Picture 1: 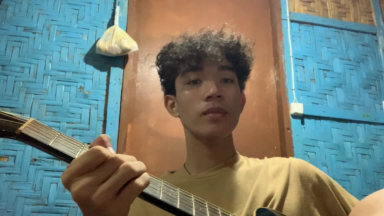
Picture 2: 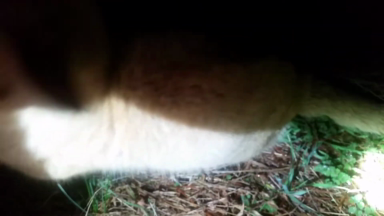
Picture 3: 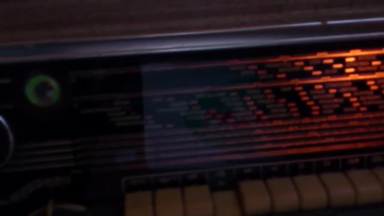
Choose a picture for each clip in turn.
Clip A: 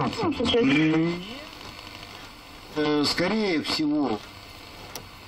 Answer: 3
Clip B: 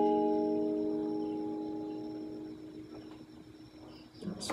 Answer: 1